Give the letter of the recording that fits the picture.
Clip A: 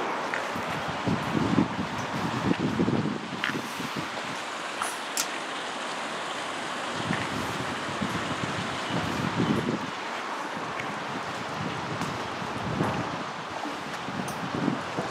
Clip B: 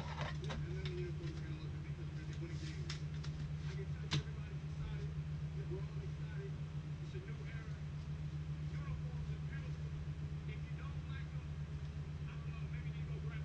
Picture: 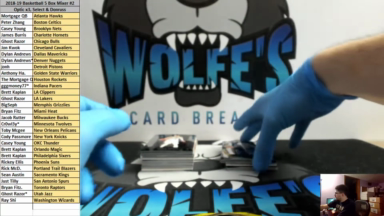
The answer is B